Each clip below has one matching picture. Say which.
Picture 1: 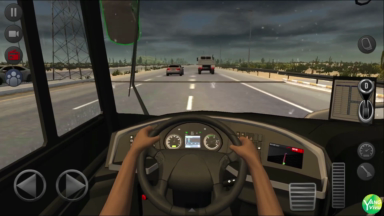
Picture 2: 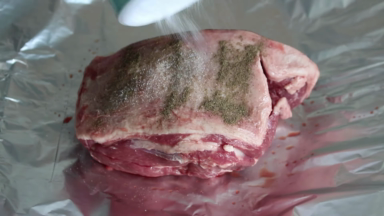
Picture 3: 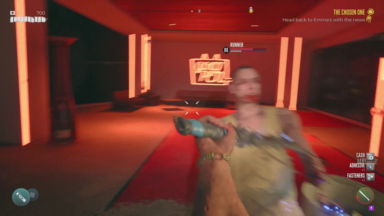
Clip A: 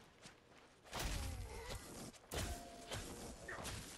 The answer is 3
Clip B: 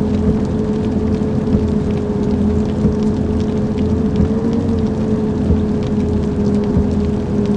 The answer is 1